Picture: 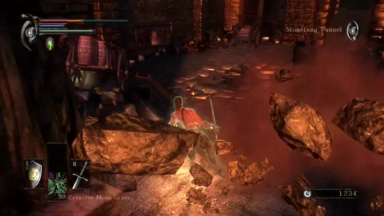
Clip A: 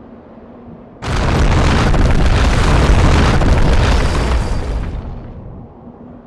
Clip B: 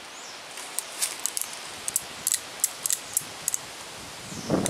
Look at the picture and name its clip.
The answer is A